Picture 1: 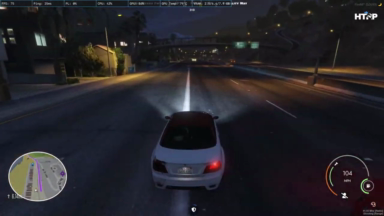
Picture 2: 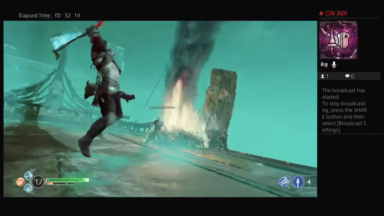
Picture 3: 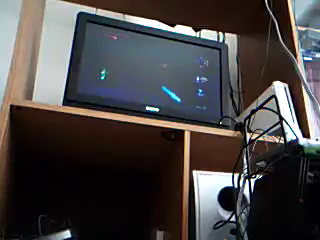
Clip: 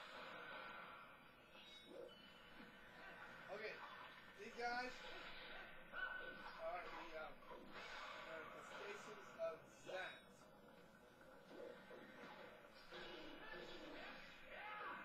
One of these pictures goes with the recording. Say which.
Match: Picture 3